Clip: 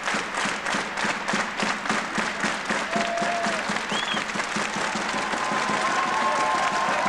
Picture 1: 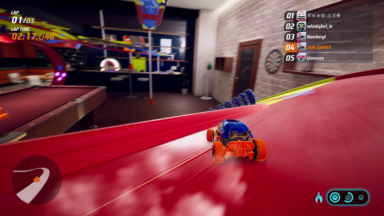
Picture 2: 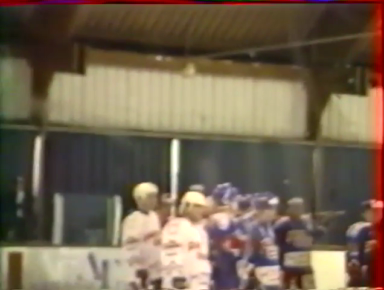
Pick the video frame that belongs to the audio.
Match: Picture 2